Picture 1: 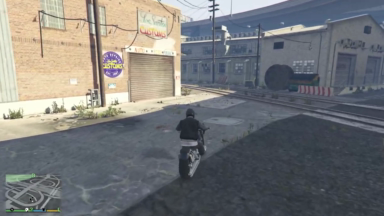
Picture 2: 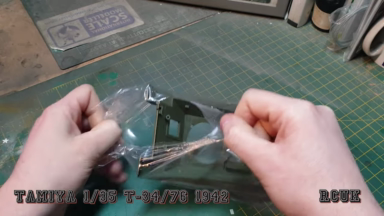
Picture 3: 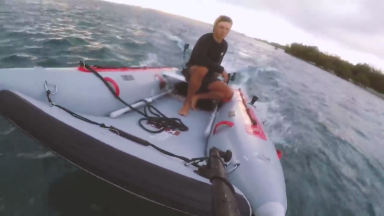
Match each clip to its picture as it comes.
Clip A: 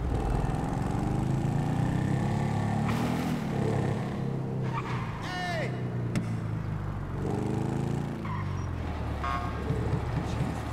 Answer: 1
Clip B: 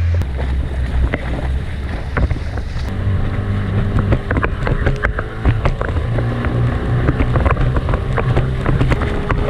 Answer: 3